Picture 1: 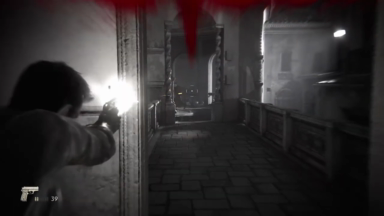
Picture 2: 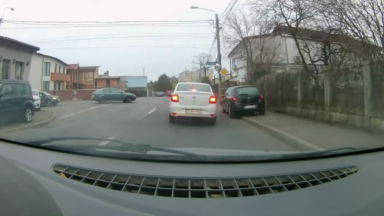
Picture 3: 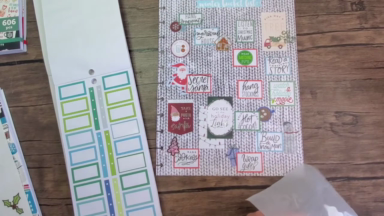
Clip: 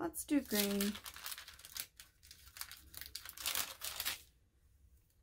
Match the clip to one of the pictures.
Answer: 3